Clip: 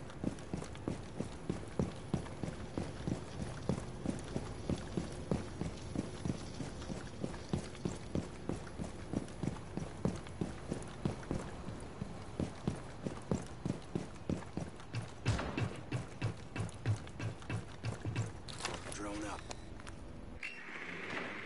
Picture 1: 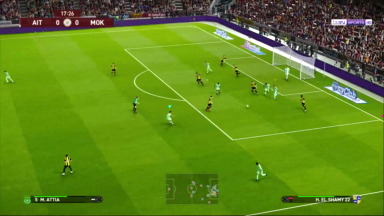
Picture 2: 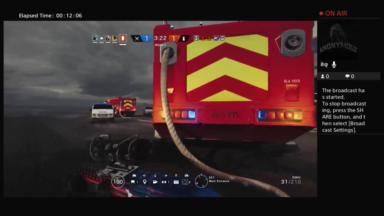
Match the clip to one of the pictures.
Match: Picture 2